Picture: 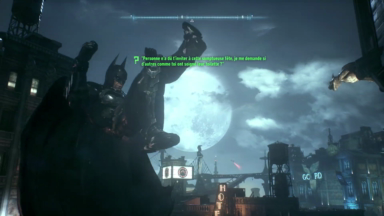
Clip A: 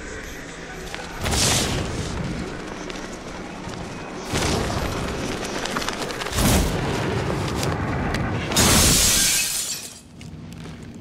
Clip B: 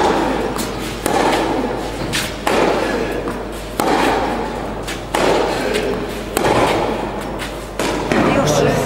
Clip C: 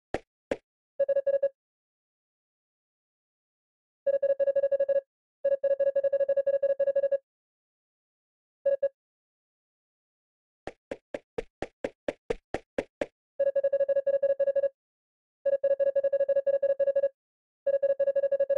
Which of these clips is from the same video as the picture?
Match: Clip A